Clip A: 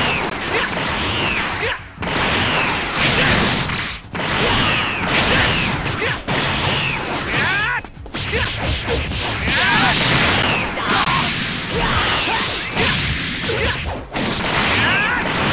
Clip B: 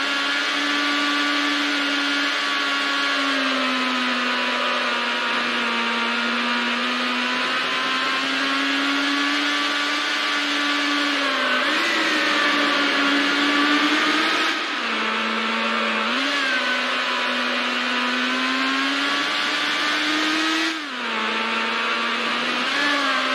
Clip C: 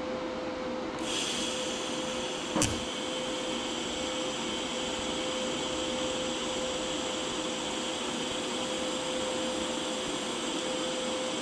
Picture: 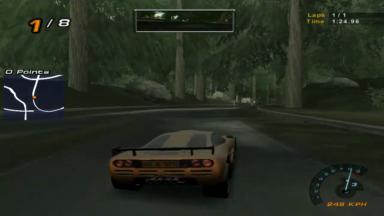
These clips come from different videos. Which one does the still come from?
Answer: B